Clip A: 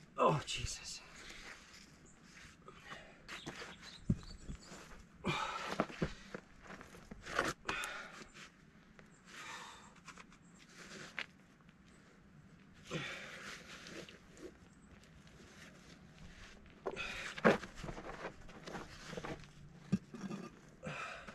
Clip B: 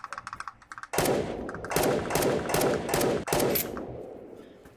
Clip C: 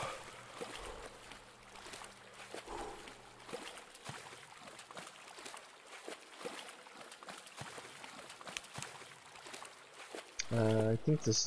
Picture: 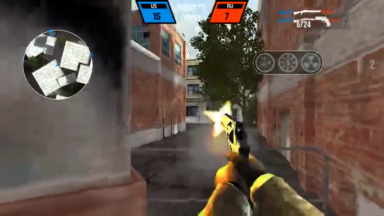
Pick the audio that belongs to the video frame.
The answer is B